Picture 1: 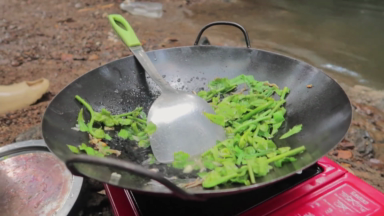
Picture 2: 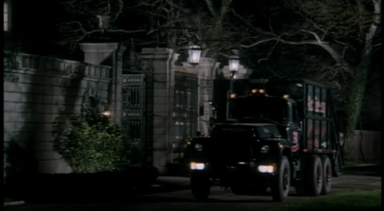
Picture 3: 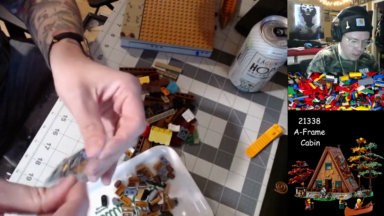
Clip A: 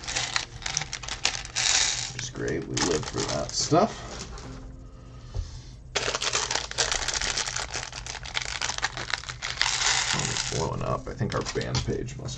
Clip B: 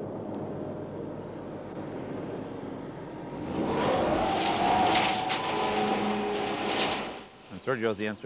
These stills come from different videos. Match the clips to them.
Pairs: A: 3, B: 2